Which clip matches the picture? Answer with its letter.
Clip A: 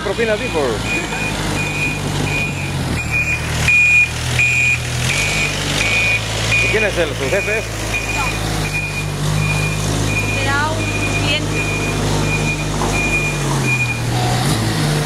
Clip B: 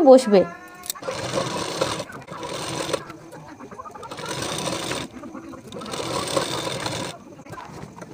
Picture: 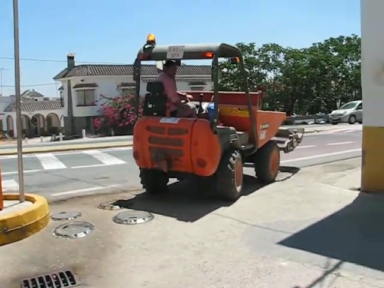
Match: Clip A